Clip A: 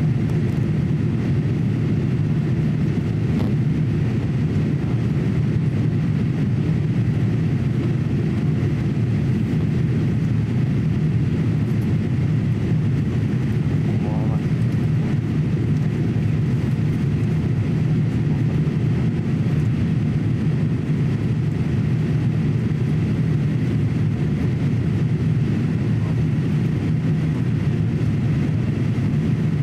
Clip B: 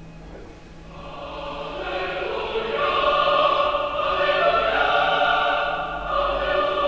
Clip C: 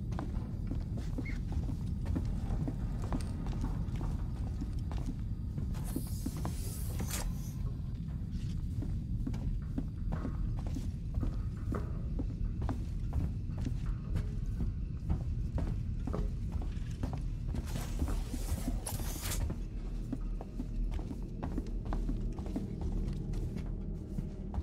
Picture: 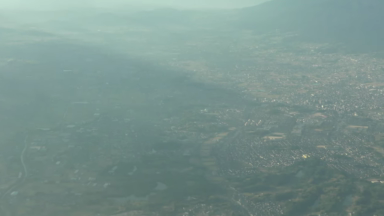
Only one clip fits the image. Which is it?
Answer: A